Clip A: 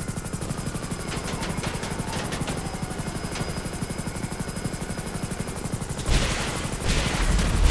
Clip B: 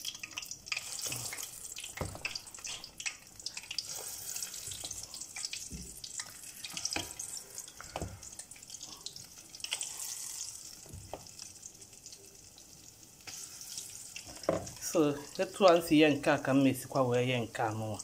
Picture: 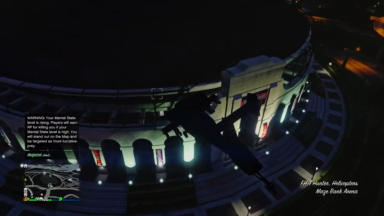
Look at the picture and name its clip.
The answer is A